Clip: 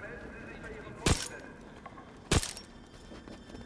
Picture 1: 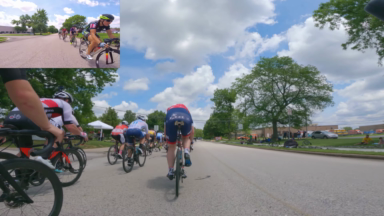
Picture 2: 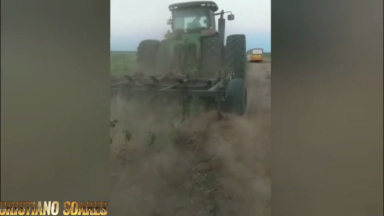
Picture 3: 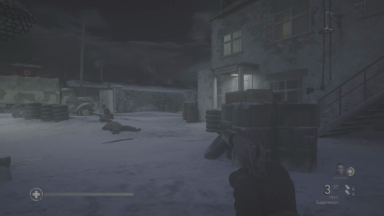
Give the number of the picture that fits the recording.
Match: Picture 3